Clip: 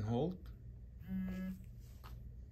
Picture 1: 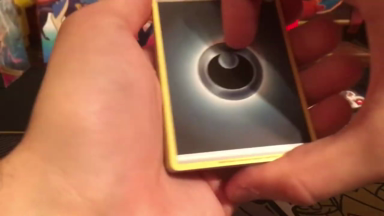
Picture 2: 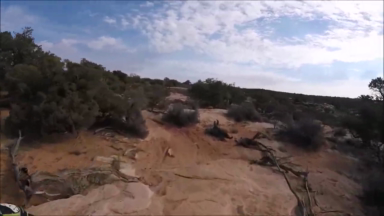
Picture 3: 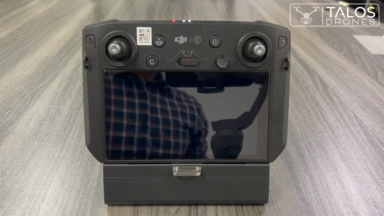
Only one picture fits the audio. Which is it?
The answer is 3